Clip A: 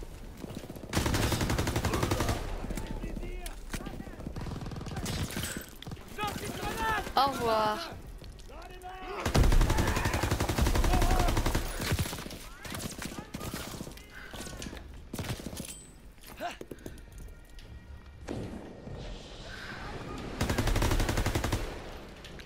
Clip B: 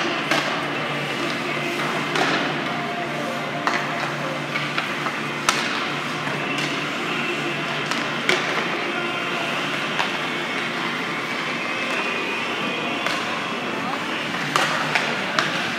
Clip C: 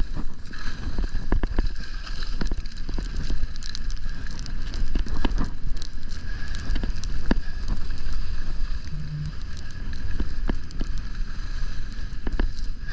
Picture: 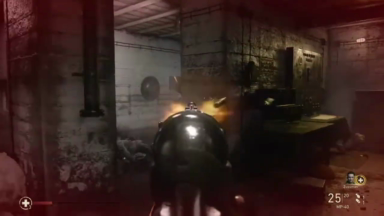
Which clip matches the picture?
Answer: A